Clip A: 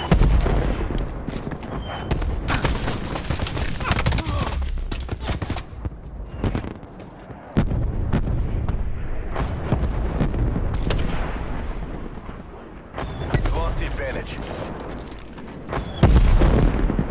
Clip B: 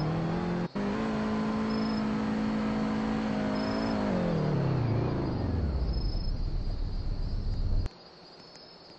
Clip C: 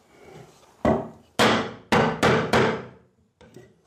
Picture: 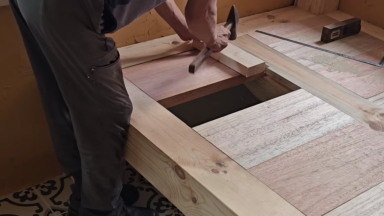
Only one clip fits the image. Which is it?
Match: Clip C